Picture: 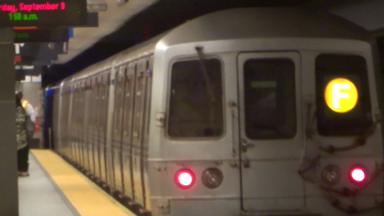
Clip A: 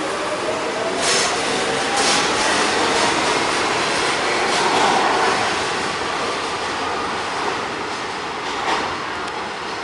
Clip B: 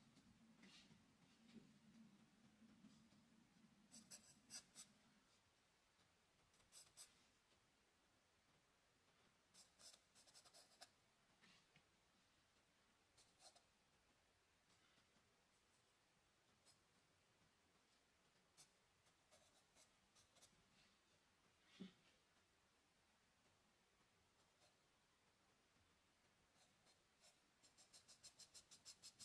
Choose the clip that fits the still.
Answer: A